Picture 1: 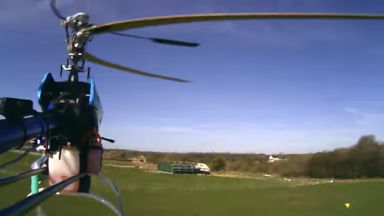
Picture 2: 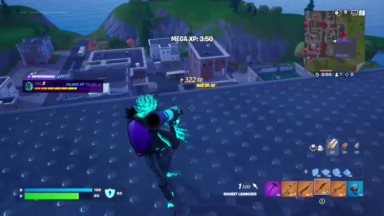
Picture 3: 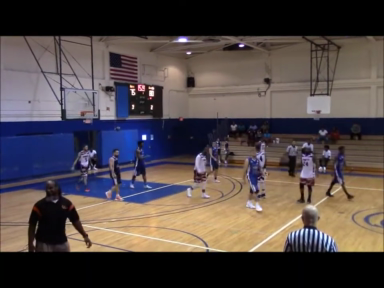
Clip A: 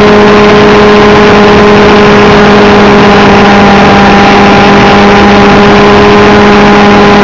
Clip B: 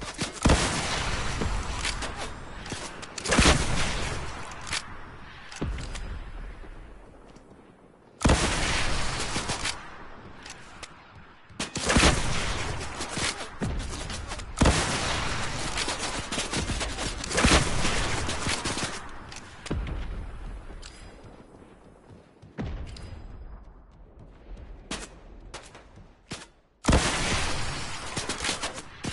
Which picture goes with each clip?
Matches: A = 1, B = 2